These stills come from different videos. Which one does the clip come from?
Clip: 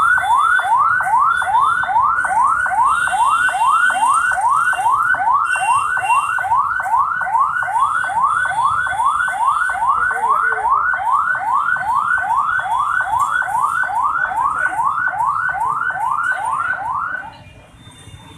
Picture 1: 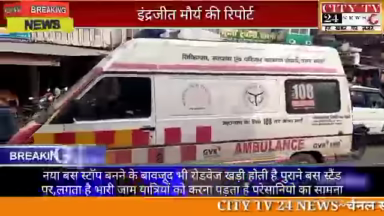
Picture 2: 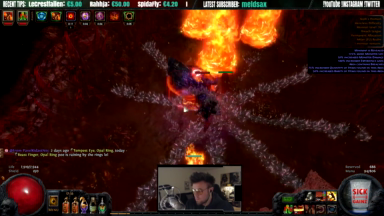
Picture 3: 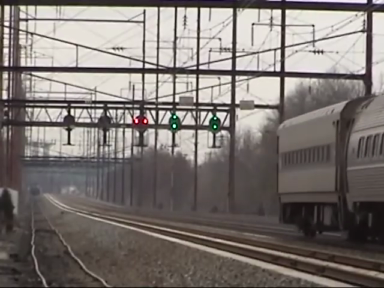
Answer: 1